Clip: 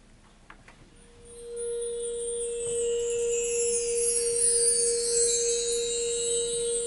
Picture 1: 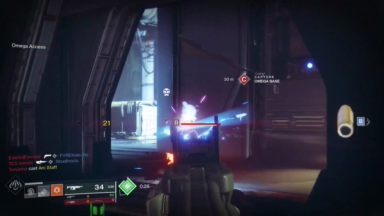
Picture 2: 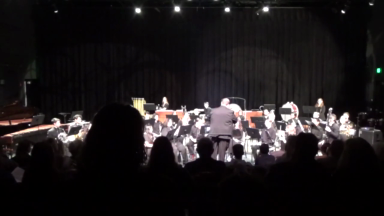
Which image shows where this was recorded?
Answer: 2